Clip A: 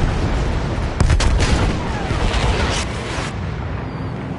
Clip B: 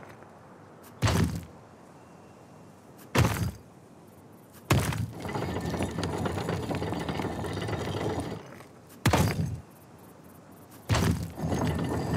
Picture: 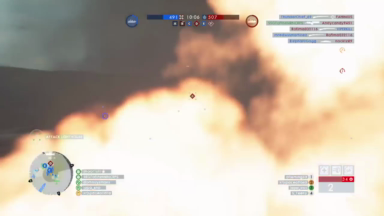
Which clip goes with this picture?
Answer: A